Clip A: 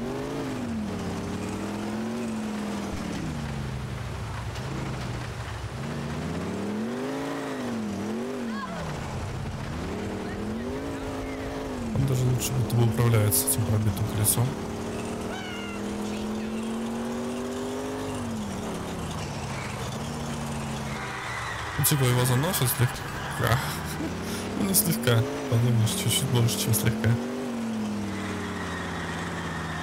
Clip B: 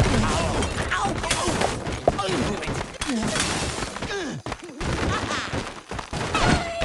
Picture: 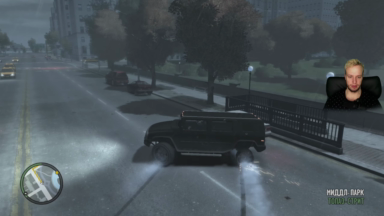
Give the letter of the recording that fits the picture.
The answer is A